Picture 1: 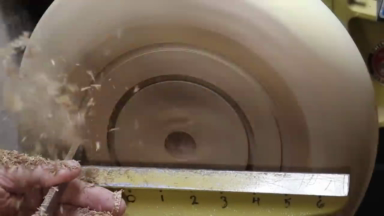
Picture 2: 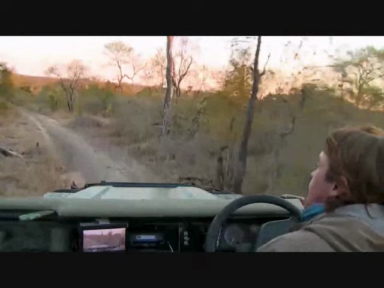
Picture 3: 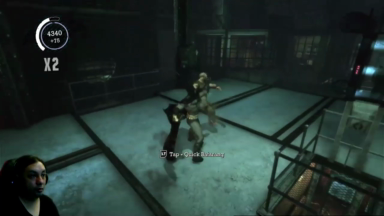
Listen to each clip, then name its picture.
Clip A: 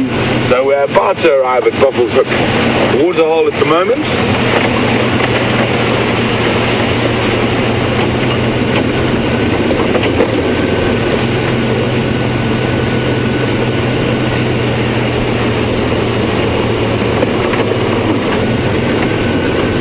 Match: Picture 2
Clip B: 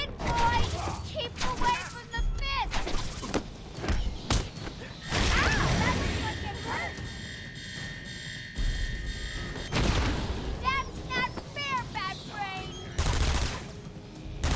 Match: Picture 3